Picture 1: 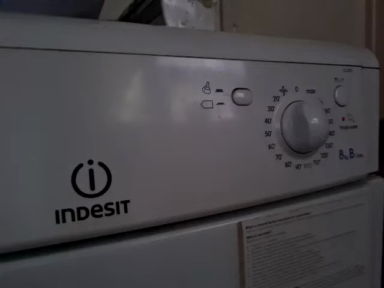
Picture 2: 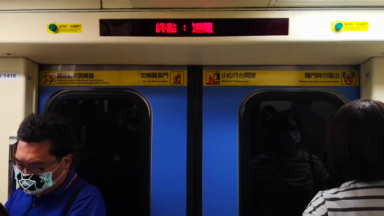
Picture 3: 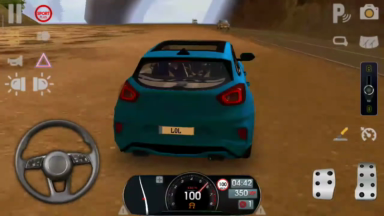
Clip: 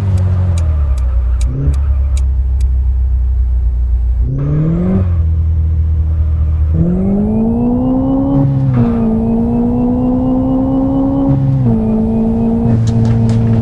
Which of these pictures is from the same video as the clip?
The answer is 3